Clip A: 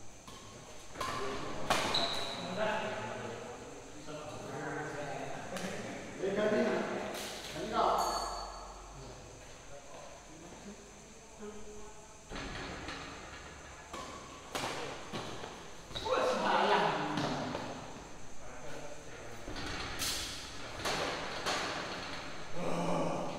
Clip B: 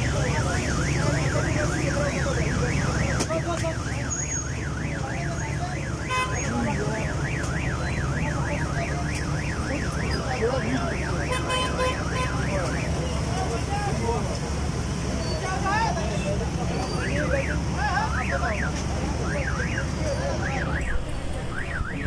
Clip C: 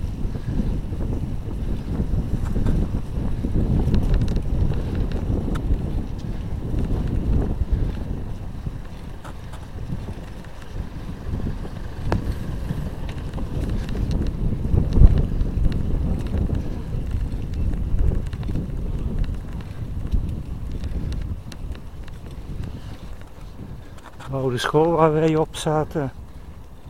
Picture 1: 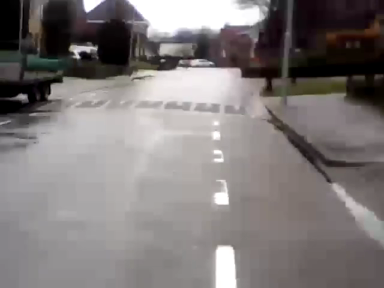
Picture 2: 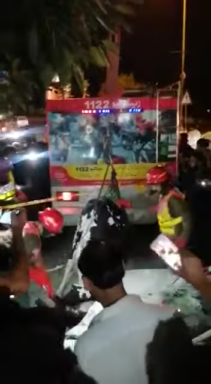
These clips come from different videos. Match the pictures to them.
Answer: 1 C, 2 B